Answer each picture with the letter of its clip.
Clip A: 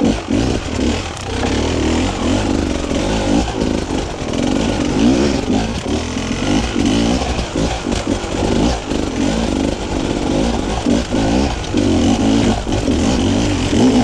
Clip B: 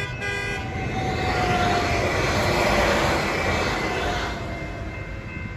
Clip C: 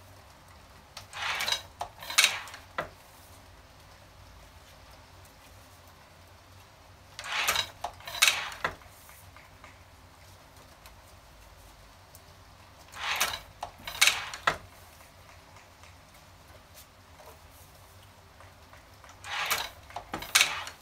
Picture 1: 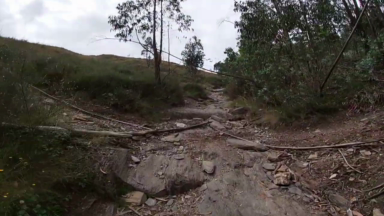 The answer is A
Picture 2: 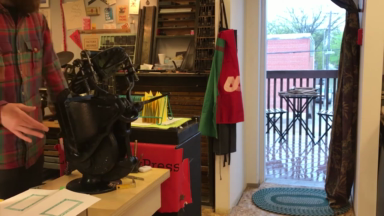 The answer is C